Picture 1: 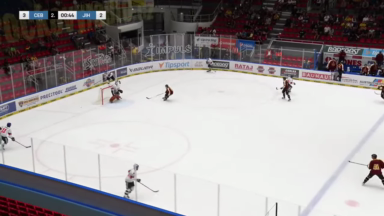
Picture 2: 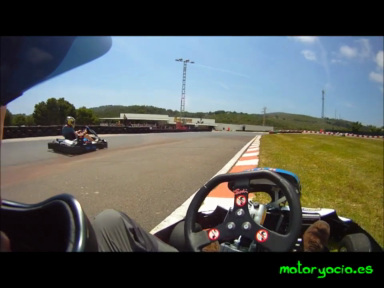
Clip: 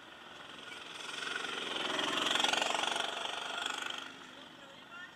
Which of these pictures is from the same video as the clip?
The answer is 2